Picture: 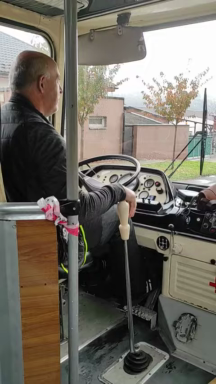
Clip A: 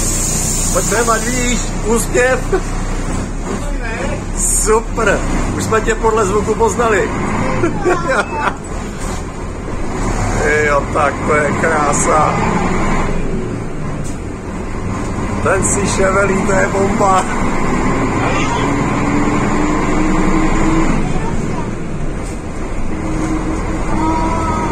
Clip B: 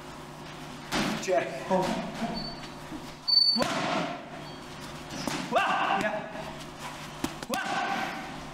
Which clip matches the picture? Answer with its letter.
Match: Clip A